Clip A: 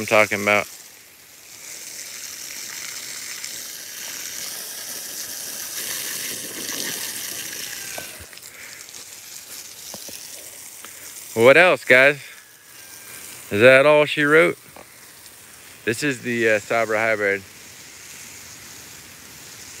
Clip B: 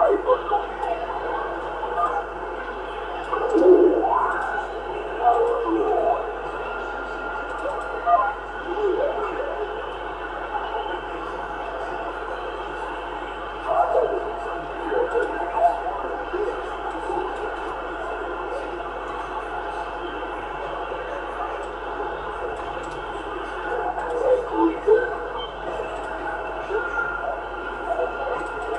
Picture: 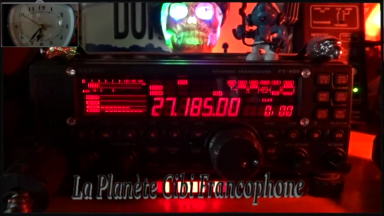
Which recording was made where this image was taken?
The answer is B